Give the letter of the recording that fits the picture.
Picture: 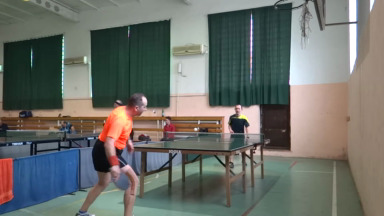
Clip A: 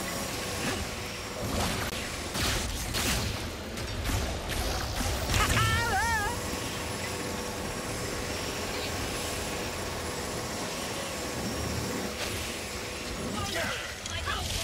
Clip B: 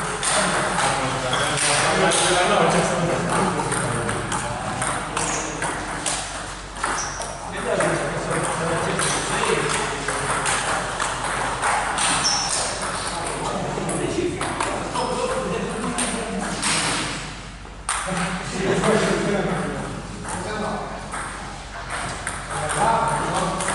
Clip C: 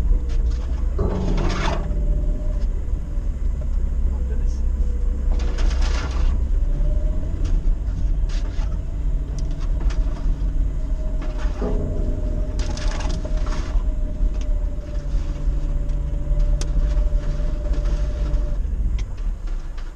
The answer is B